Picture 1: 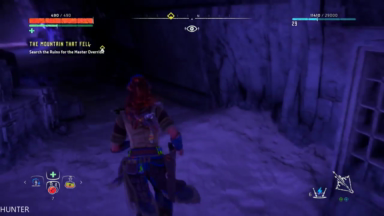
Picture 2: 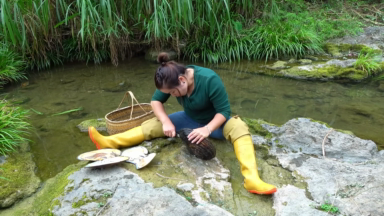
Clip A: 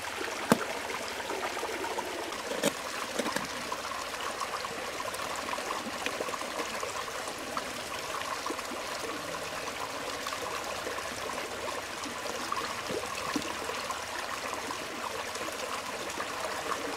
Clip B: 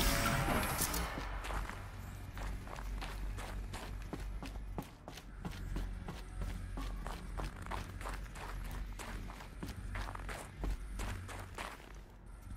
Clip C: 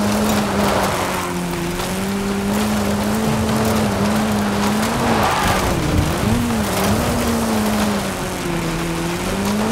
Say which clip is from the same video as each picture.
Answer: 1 B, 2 A